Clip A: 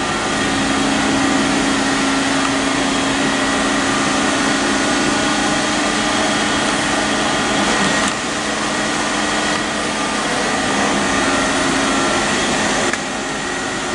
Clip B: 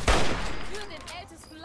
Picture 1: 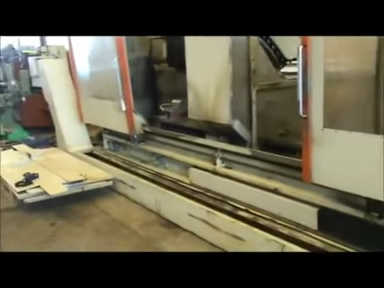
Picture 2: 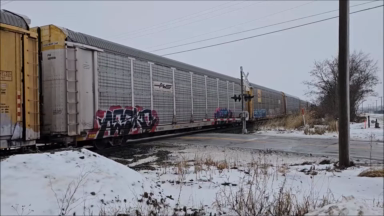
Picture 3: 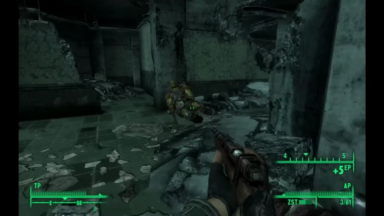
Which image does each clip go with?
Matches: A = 1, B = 3